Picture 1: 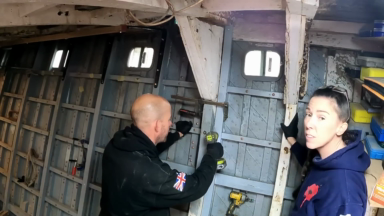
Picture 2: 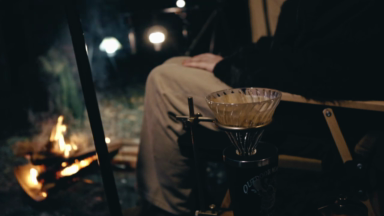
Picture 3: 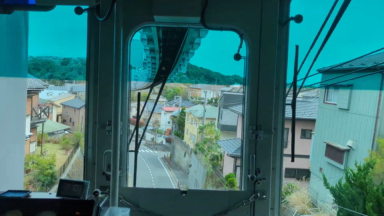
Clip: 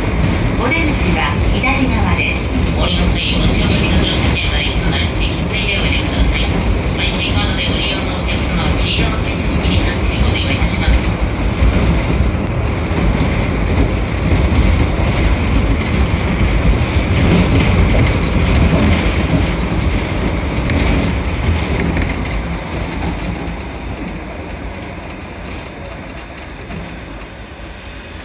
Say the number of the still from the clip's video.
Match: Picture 3